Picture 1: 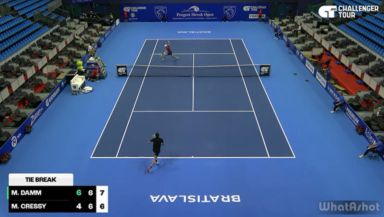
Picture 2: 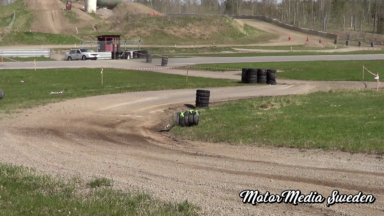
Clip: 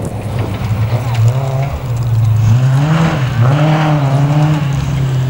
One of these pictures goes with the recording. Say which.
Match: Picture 2